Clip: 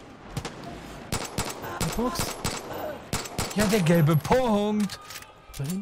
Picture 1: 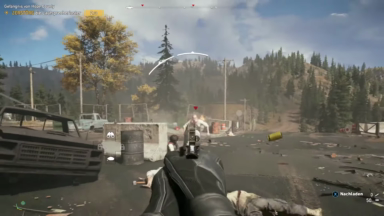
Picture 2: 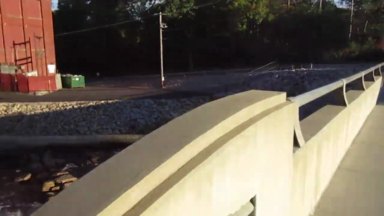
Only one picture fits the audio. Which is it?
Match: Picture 1